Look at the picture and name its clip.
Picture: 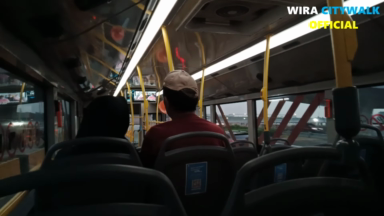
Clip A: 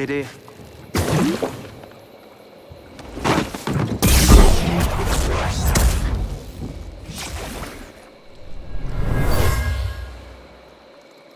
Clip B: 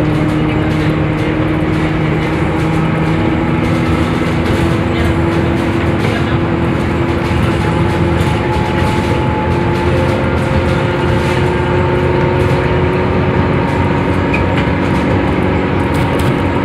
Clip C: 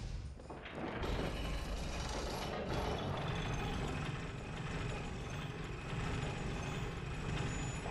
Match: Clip B